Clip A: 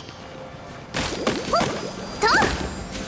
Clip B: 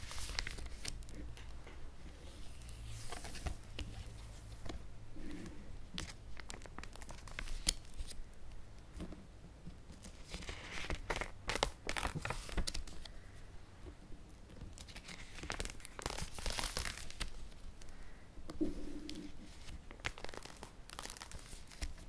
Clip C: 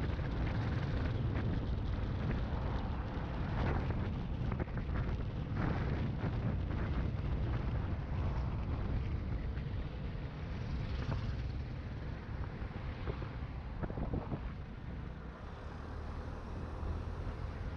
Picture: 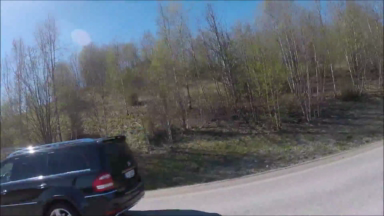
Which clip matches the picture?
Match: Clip C